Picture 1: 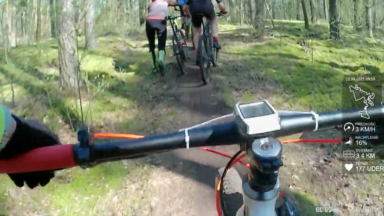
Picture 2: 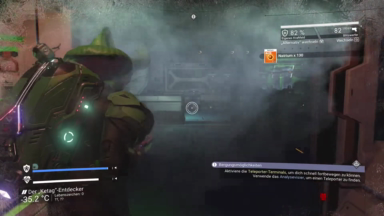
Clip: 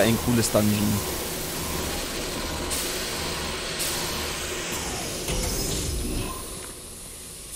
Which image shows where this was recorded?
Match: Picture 2